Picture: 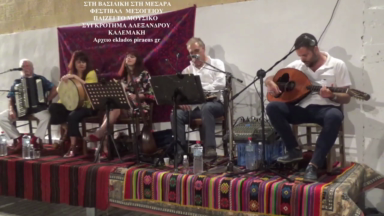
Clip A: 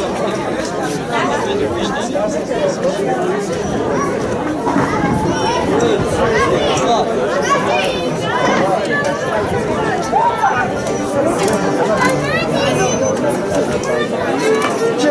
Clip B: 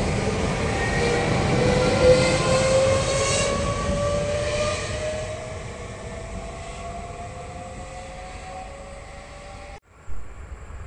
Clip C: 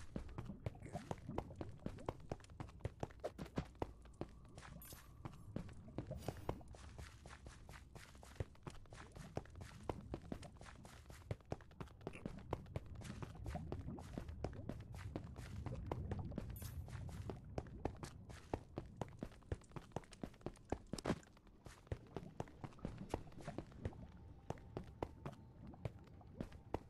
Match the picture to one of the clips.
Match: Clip A